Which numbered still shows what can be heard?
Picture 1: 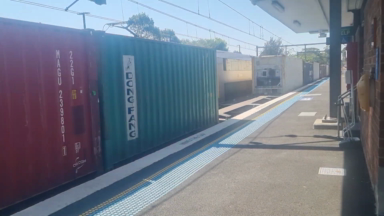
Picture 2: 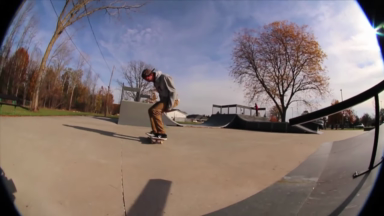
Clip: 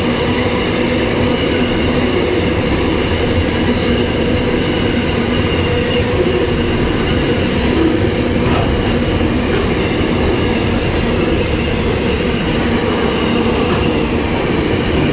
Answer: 1